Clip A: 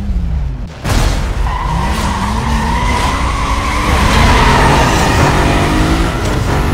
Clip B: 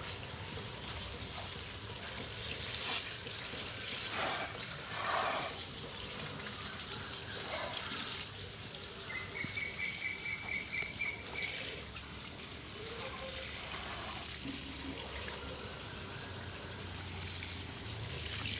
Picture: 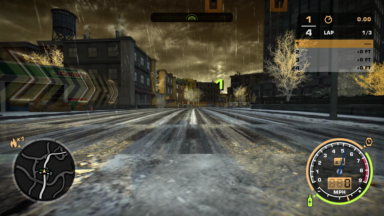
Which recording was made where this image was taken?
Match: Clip A